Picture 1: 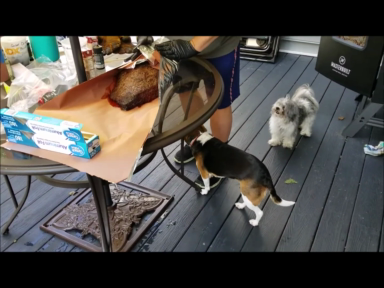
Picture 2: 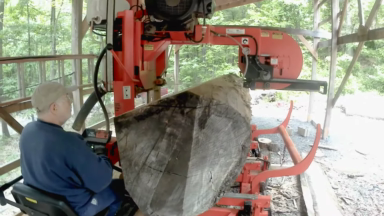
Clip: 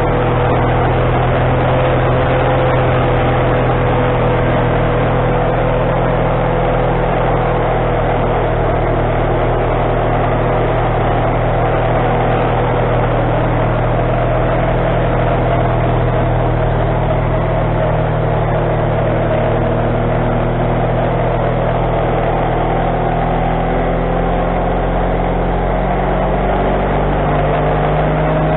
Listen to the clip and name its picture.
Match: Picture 2